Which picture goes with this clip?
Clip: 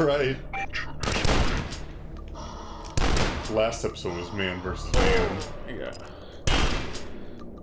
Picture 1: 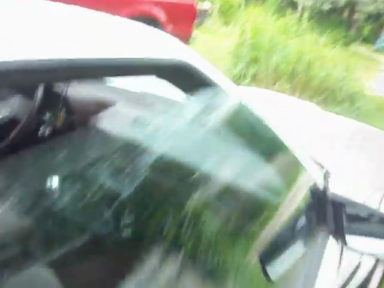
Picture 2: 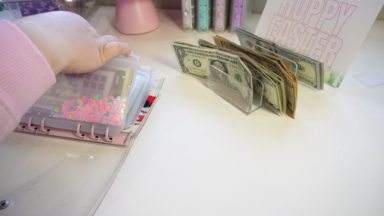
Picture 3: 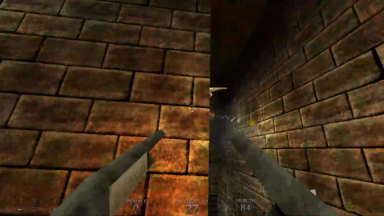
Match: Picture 3